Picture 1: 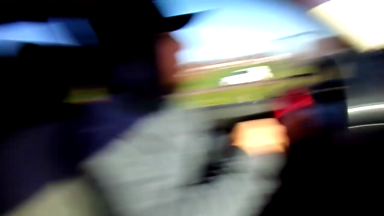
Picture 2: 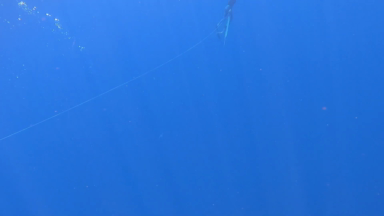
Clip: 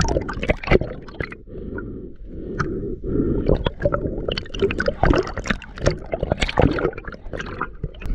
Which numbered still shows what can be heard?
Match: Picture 2